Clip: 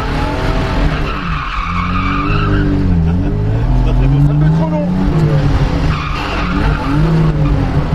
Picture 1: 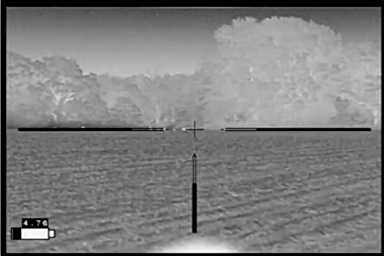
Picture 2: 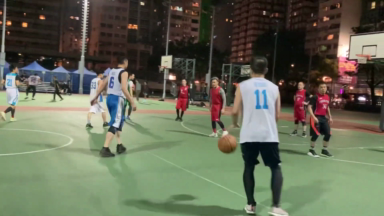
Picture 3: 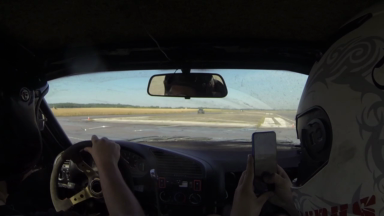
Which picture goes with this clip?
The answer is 3